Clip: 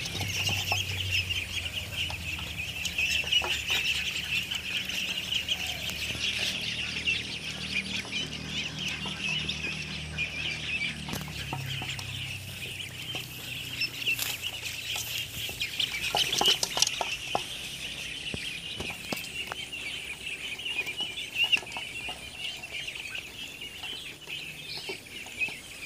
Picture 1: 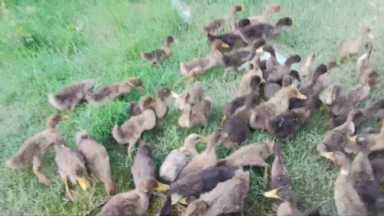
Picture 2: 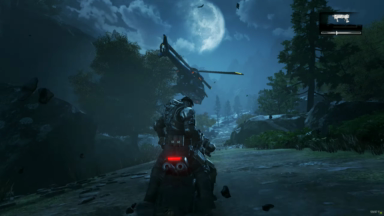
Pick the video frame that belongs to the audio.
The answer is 1